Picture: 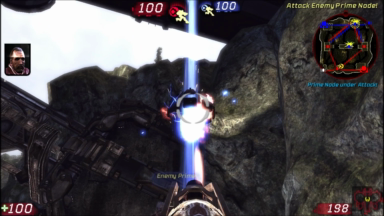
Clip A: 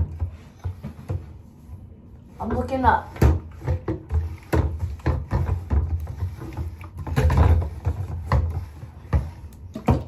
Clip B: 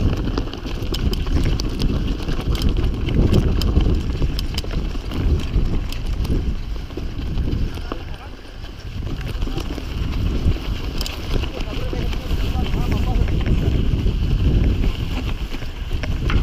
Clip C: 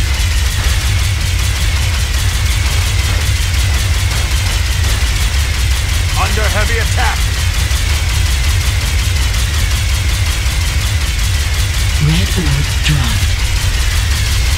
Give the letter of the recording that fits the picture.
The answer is C